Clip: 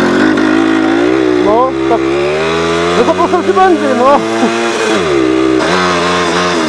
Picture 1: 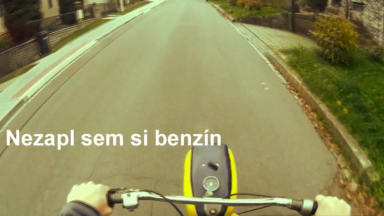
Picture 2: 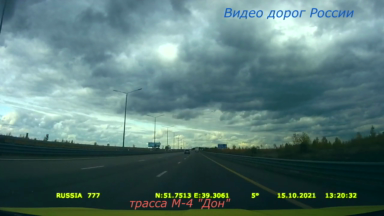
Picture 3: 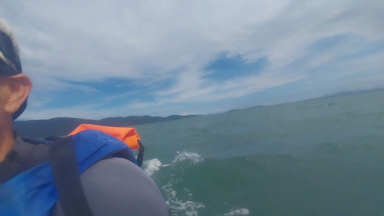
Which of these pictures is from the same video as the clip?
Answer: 1